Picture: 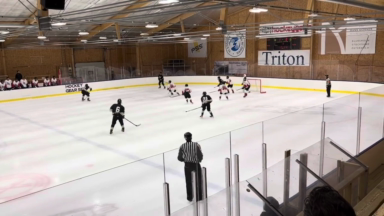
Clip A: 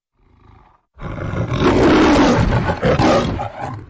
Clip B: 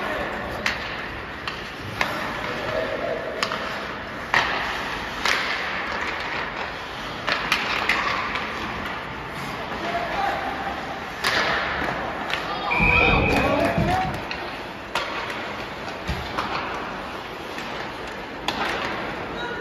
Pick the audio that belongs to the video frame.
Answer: B